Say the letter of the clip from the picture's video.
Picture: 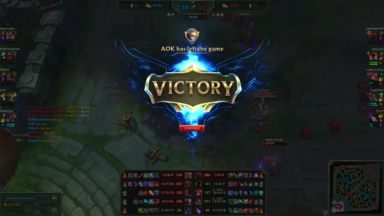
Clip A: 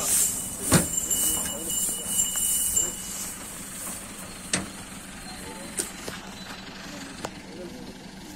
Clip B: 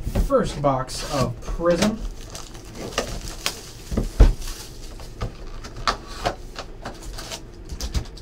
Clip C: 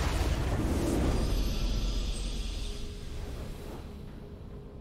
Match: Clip C